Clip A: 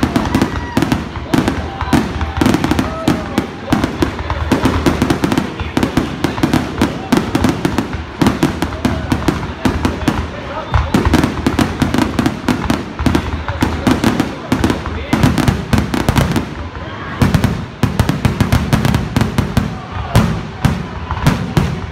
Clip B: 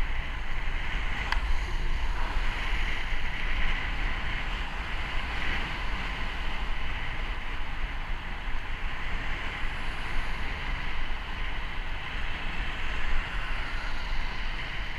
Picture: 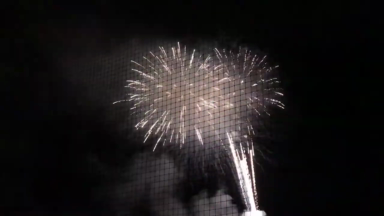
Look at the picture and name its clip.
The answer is A